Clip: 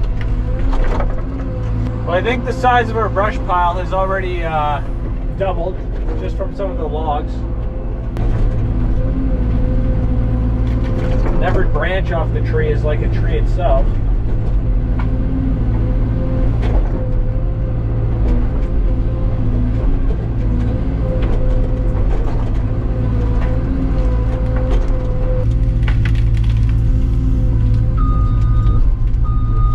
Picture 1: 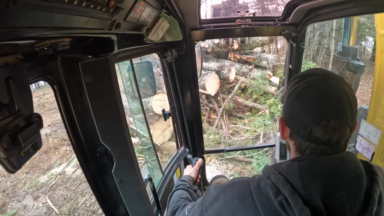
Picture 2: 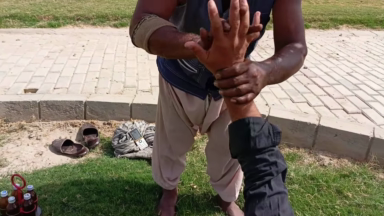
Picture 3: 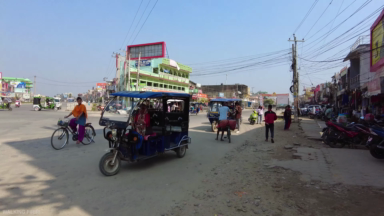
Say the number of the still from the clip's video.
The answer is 1